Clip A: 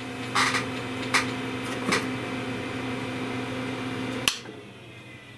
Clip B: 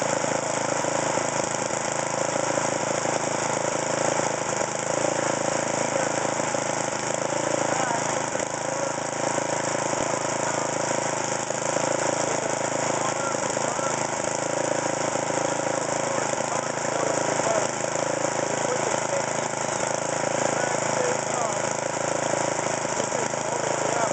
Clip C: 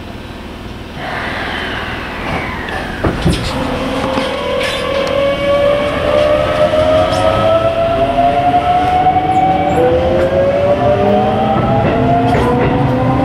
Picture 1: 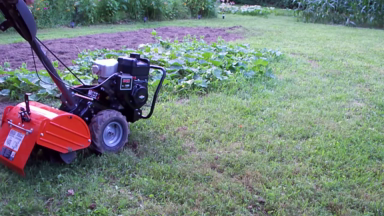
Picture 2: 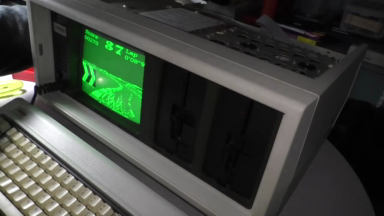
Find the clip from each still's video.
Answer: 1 B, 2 A